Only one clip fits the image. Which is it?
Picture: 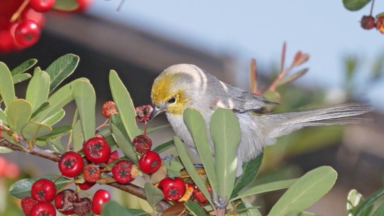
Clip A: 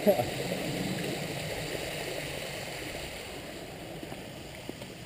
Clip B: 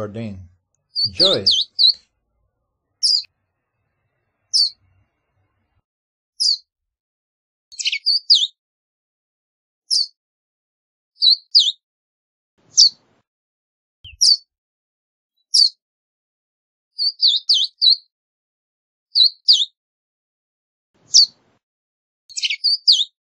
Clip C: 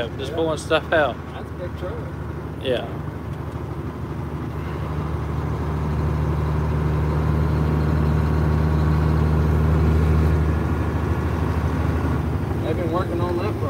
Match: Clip B